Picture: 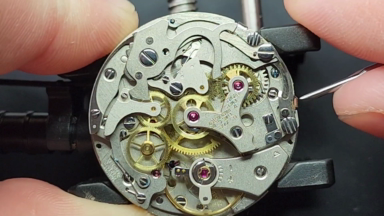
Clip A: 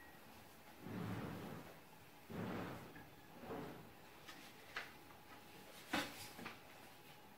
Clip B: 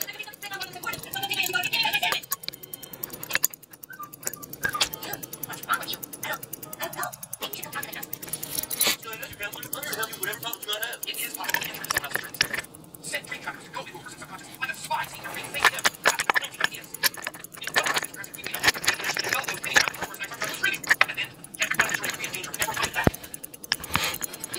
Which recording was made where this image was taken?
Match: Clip B